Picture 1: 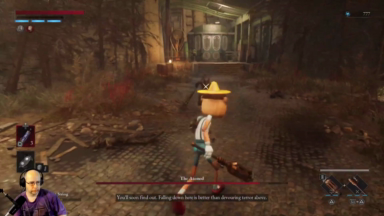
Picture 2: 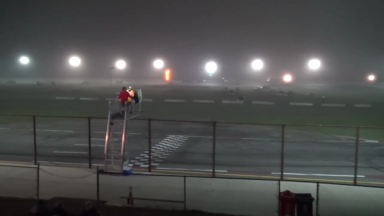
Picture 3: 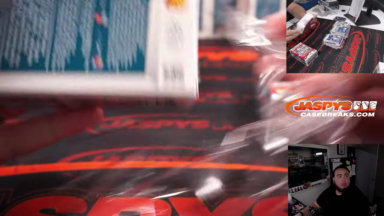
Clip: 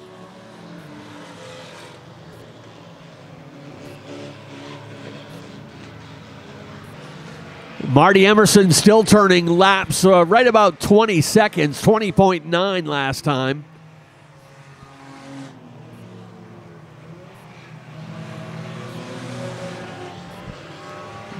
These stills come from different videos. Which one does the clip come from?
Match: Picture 2